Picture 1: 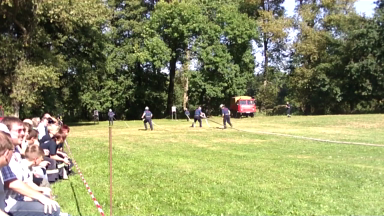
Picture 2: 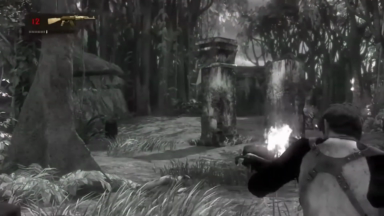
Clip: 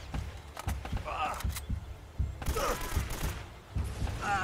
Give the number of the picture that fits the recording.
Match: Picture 2